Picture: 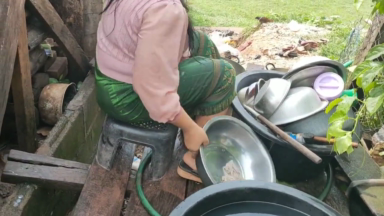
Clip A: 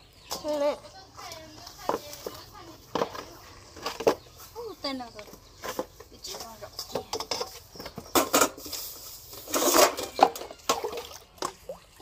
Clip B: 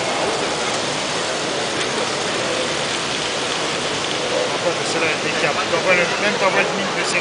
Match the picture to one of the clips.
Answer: A